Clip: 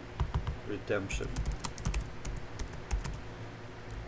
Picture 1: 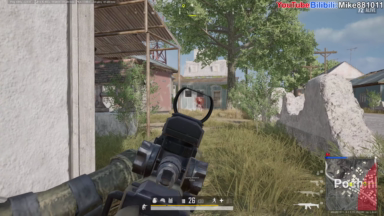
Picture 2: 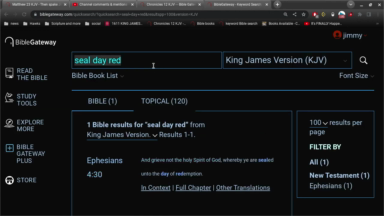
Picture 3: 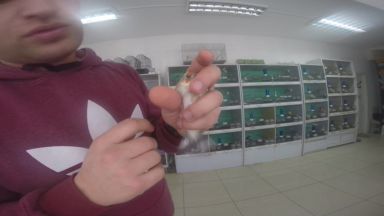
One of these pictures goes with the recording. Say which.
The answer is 2